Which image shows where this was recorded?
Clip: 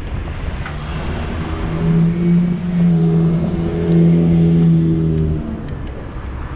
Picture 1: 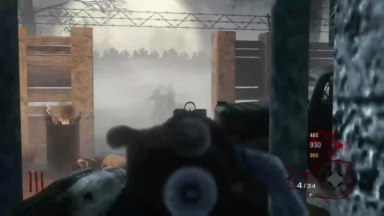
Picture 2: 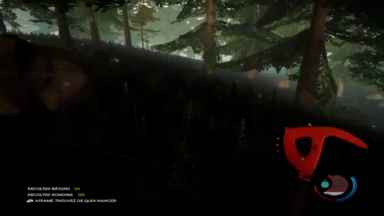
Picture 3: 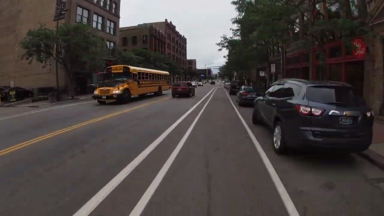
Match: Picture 3